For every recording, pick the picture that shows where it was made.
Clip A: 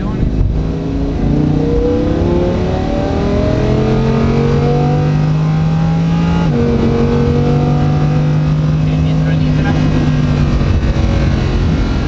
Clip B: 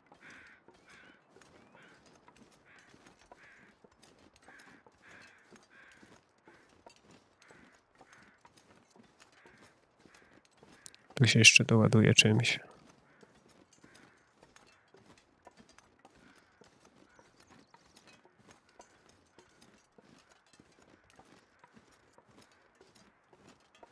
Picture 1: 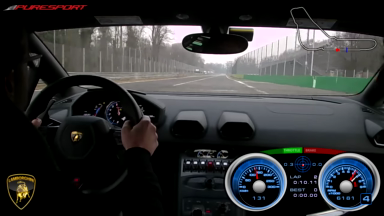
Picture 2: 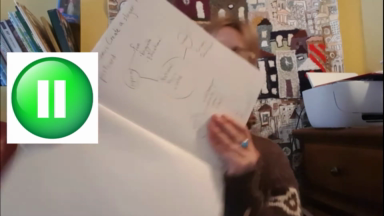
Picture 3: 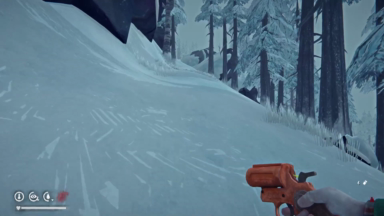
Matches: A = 1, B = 3